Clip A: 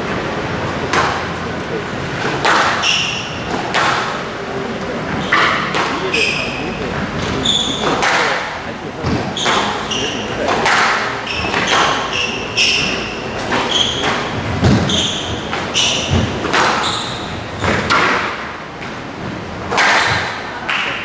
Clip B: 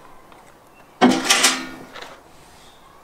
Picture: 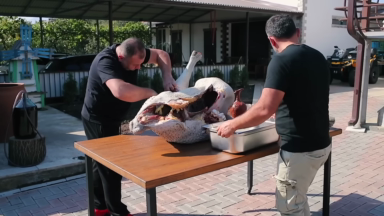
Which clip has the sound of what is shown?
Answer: B